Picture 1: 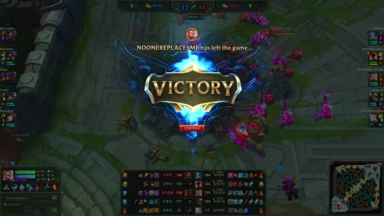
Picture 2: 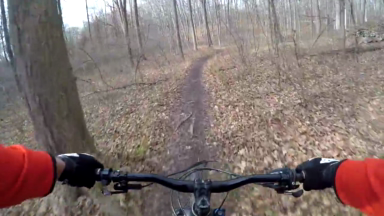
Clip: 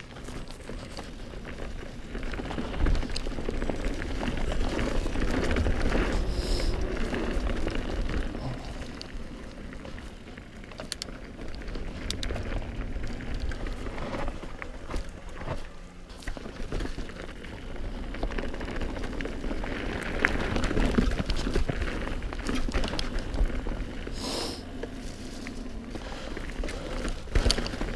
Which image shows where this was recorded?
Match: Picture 2